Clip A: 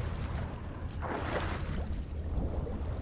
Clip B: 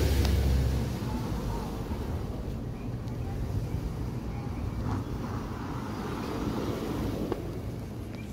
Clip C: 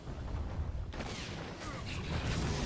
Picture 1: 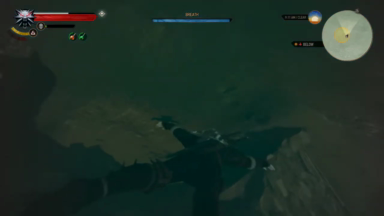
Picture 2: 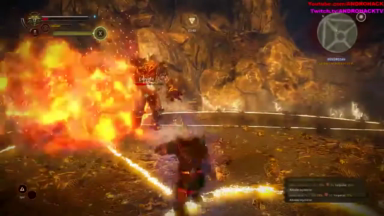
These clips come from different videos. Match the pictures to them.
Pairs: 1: A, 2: C